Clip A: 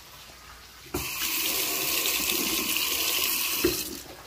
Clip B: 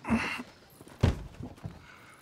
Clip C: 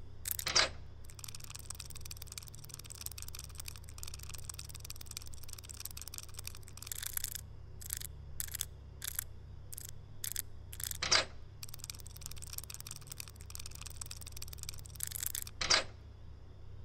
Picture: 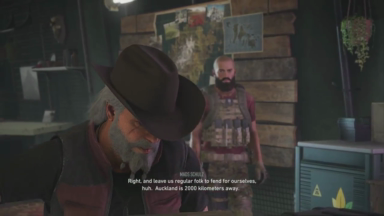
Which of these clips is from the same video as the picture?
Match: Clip B